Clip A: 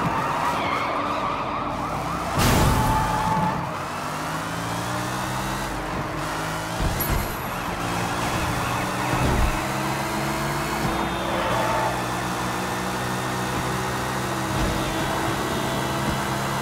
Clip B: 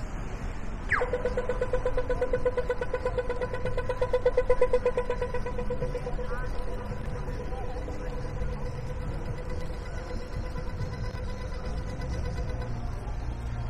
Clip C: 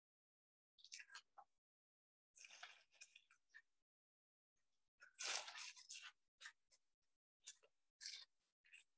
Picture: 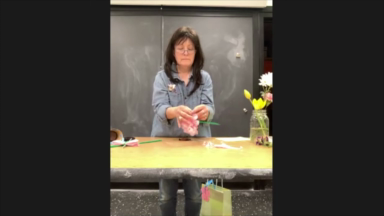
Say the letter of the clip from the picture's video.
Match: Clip C